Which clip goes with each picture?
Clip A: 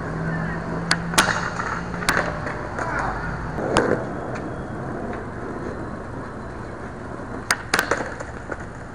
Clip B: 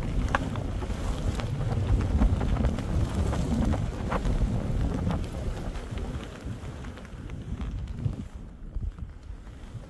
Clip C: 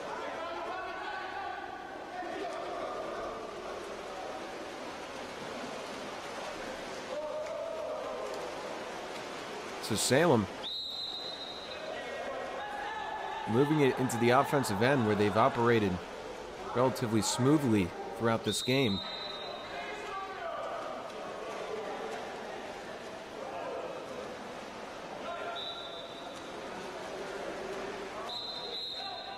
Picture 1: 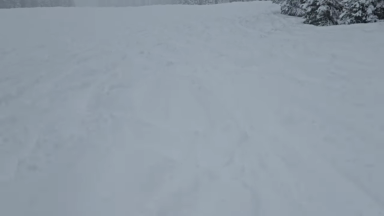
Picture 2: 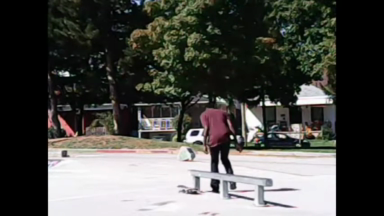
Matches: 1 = B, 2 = A